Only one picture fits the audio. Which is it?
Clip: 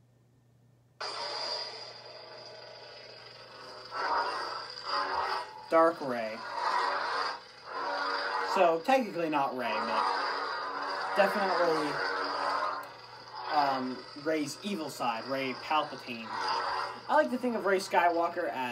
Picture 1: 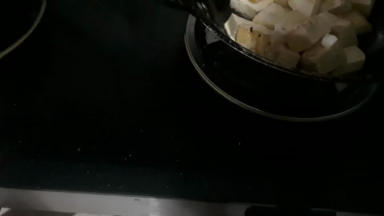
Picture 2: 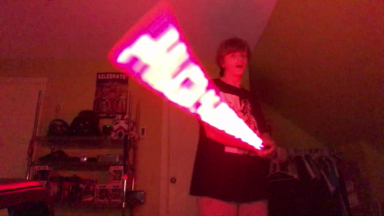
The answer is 2